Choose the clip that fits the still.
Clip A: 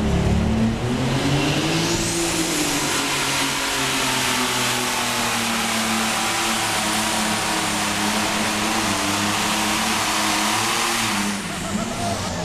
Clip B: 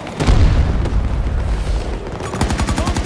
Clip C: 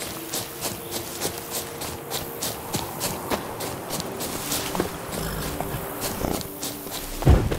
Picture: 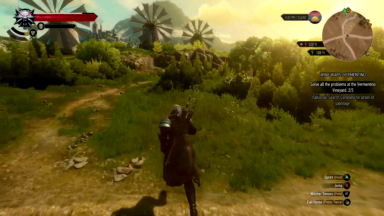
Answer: C